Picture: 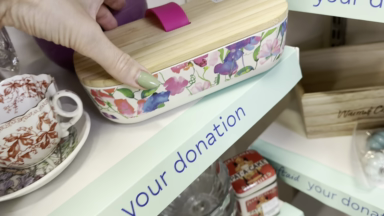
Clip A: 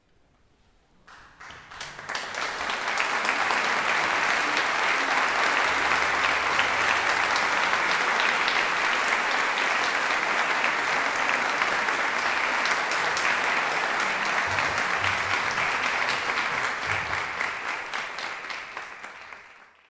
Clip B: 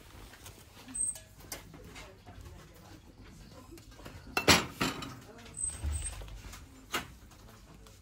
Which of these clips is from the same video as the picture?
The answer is B